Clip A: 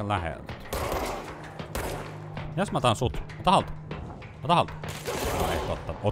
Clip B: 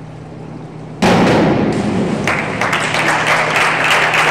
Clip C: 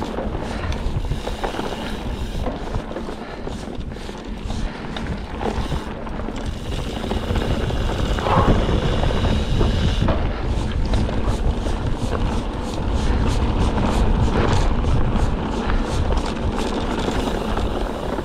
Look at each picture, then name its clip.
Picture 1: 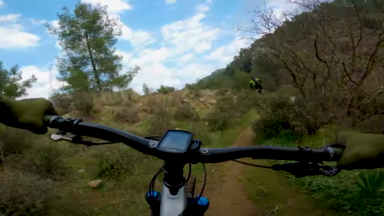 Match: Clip C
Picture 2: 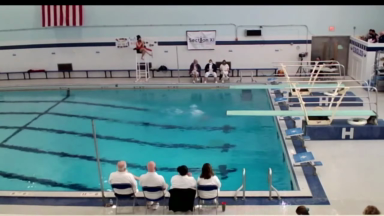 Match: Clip B